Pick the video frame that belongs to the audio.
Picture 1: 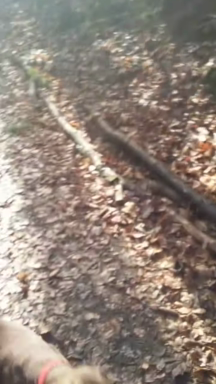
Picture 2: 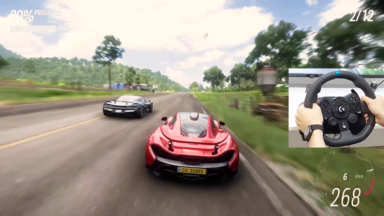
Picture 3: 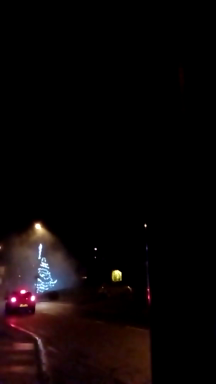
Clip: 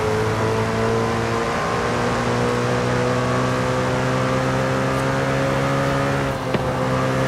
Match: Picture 2